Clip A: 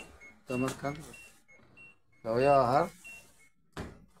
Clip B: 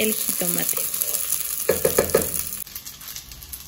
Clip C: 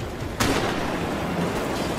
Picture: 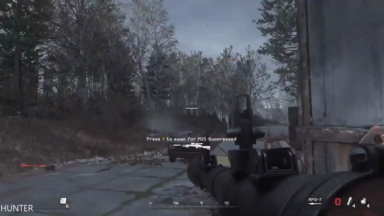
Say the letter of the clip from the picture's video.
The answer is C